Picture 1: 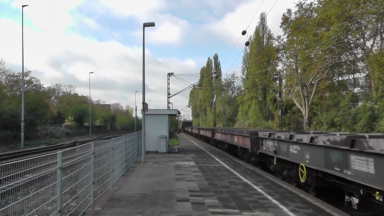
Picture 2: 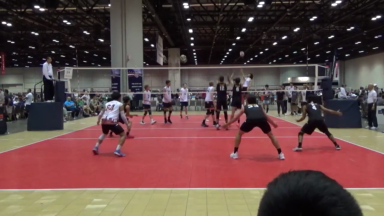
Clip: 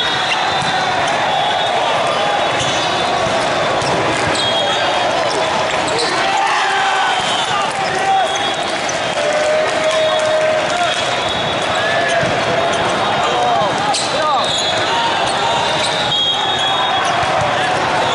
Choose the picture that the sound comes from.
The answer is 2